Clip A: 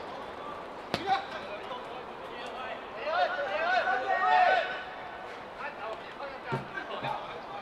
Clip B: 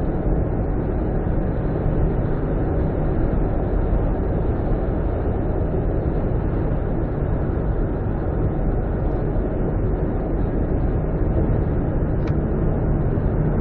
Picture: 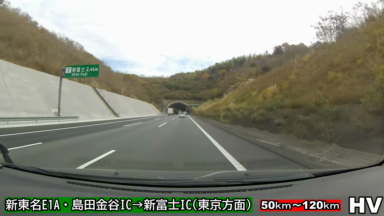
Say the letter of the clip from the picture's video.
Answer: B